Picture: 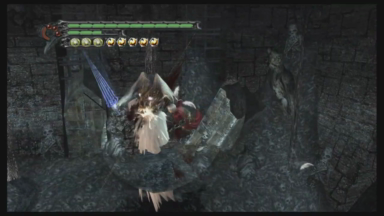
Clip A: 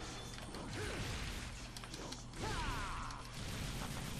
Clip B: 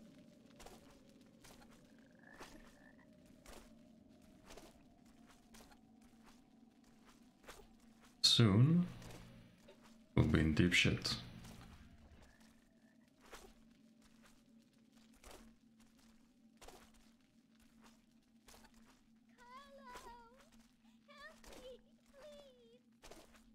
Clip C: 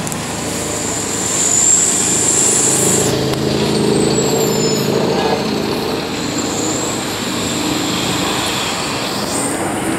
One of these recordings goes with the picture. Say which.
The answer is A